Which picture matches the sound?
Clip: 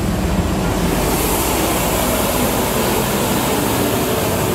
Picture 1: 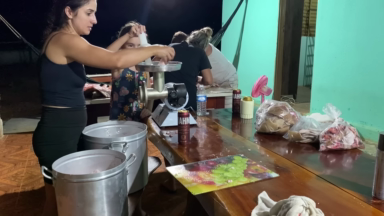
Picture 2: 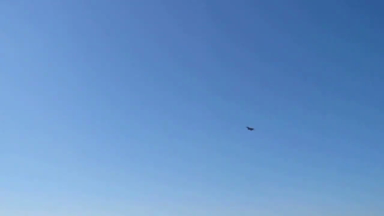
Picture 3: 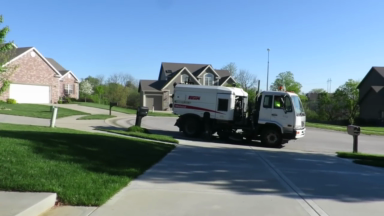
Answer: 3